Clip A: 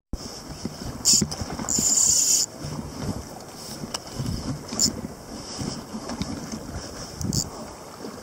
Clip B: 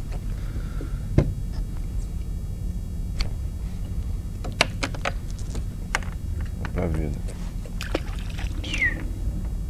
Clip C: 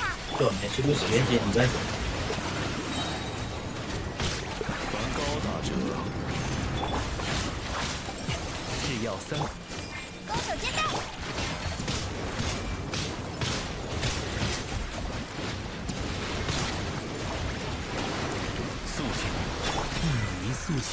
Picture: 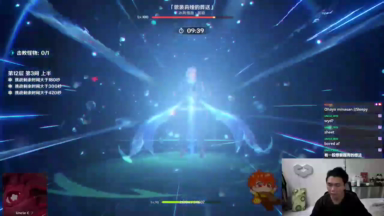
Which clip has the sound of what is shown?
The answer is C